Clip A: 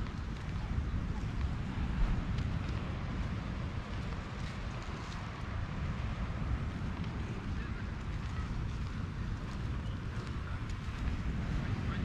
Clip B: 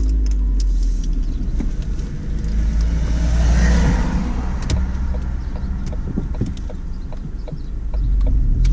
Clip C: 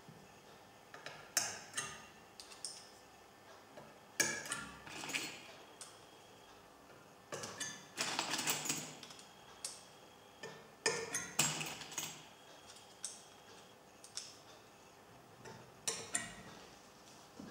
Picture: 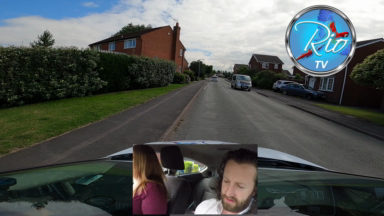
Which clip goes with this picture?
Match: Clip B